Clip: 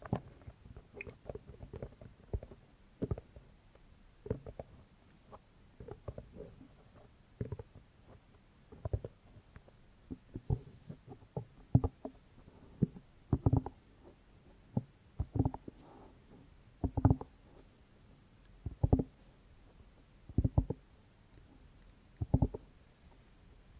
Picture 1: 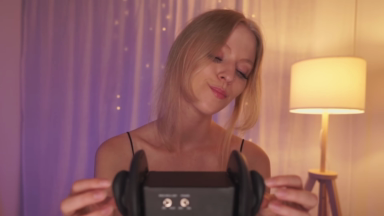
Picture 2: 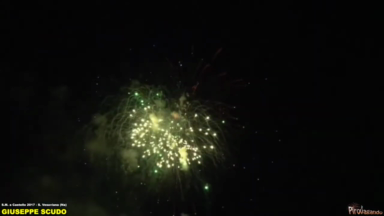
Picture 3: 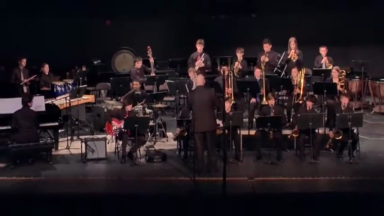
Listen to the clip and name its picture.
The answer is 1